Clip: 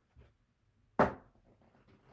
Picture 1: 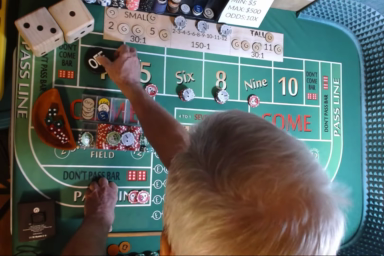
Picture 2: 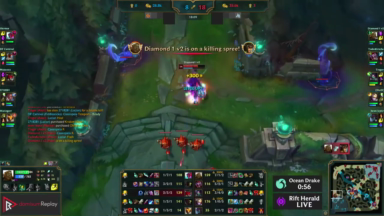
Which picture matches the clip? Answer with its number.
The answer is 1